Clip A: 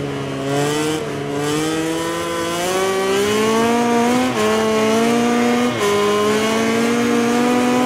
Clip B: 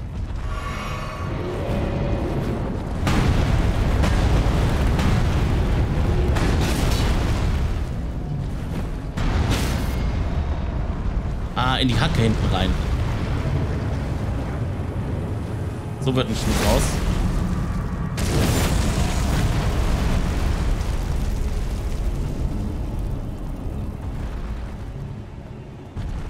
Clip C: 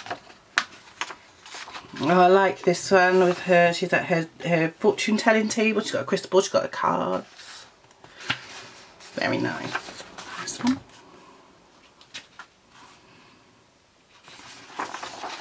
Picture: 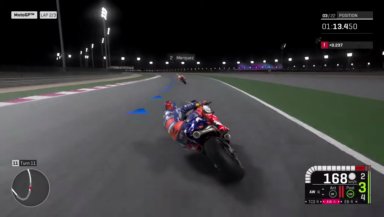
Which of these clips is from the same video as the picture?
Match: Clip A